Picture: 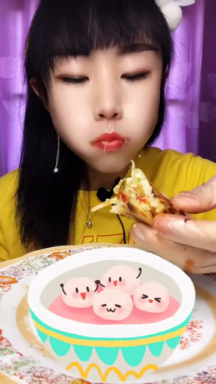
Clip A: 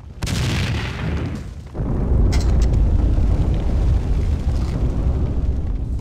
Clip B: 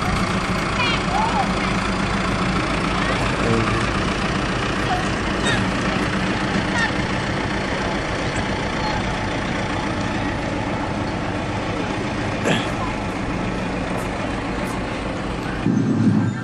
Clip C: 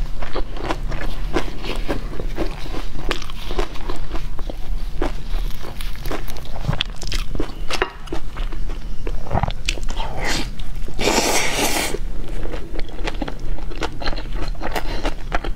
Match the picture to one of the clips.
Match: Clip C